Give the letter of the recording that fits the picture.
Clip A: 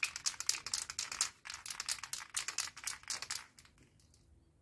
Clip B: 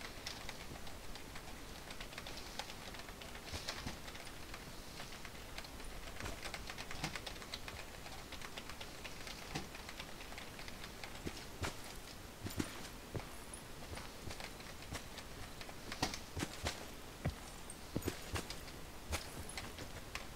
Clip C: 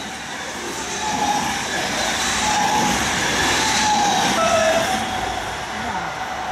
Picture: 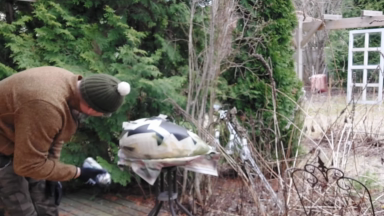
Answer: A